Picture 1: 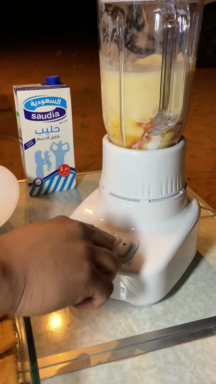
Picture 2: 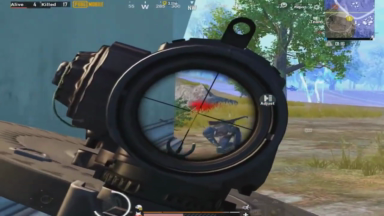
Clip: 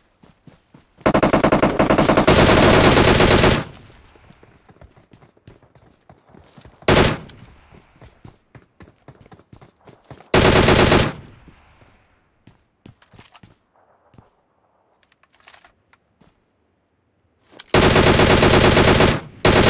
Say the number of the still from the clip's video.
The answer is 2